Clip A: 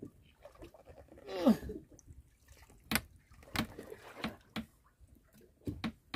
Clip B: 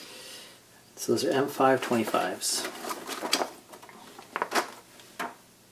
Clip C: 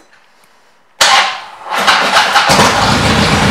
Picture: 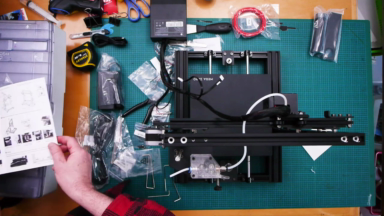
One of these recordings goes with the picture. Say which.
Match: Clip B